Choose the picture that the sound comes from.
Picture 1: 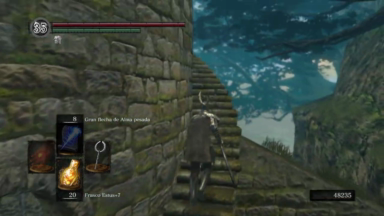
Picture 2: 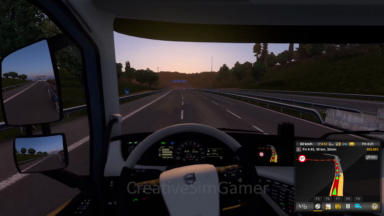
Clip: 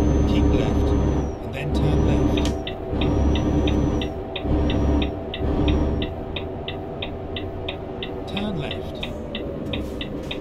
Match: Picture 2